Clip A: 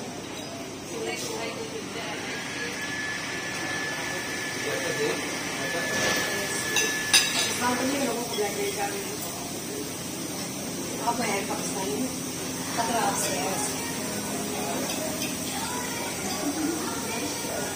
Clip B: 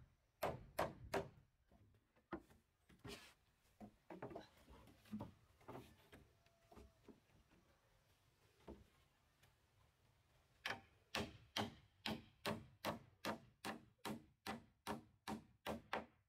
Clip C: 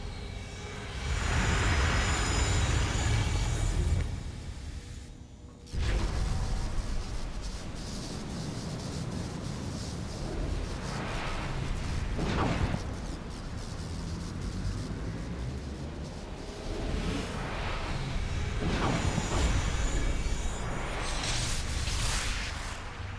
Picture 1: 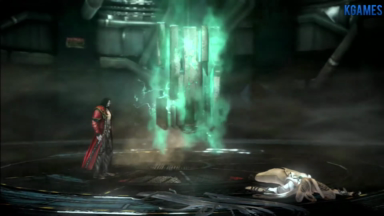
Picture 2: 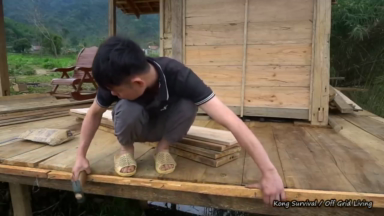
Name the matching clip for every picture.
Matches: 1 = C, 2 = B